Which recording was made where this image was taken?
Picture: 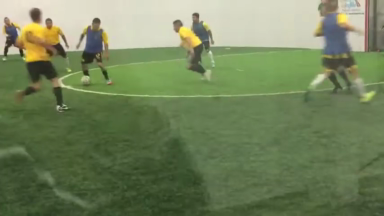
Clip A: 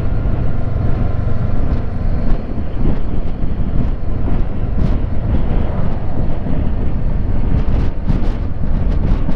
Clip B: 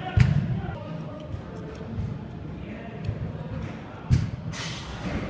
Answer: B